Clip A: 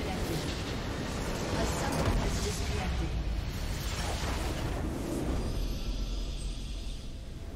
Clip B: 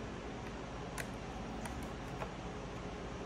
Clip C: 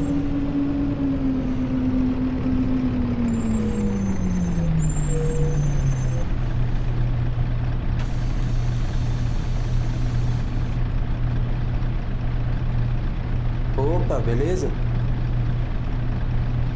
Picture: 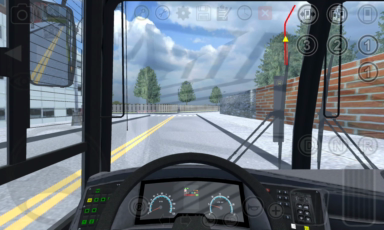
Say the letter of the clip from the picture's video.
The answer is C